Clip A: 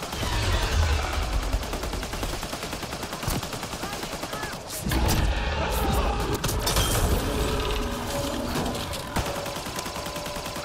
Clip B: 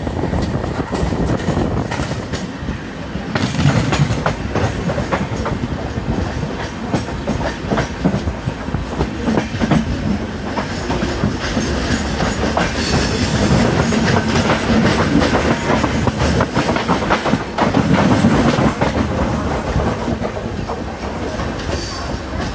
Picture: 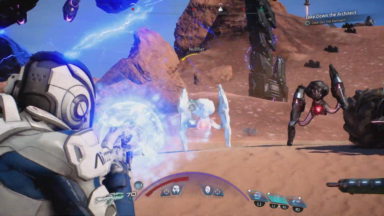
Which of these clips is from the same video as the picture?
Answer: A